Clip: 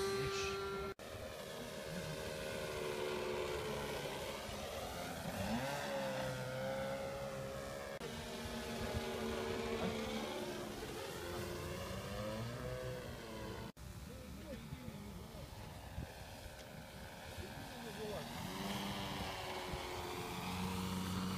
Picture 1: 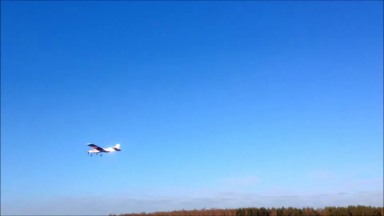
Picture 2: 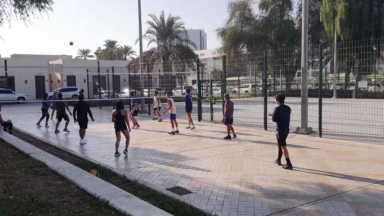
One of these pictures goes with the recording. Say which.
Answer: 1